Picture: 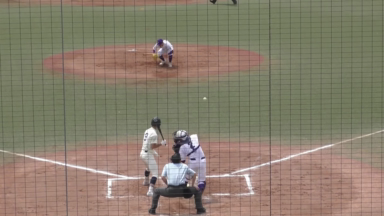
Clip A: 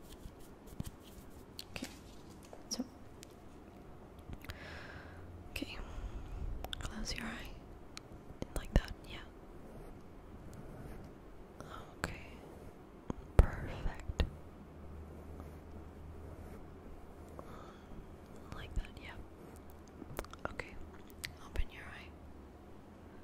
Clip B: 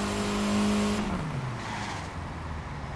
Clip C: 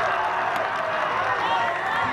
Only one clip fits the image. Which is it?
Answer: C